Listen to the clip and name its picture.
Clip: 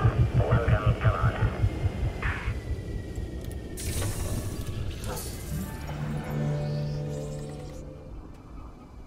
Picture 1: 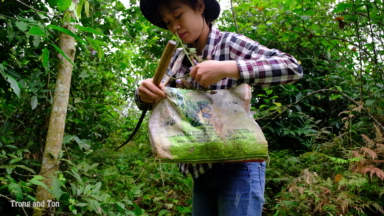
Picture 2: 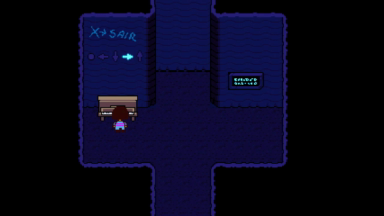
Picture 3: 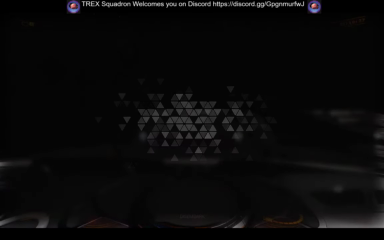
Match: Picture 3